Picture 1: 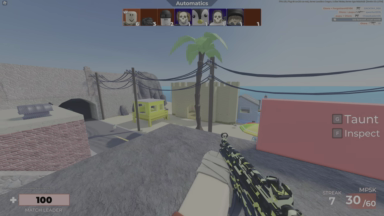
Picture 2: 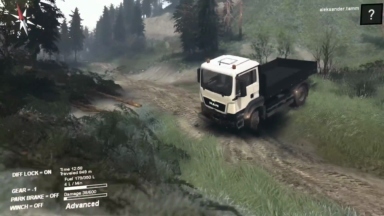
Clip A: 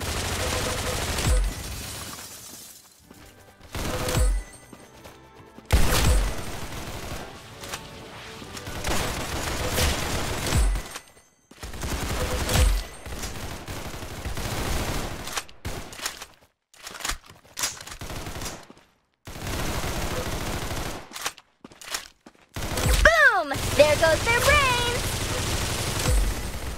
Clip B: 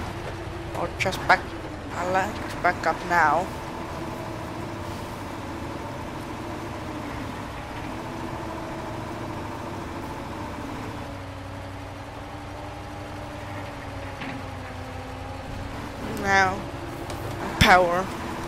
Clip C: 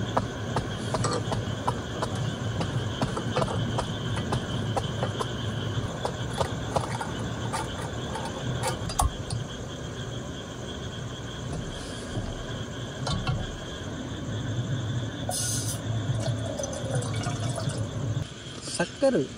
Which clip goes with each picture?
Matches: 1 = A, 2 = B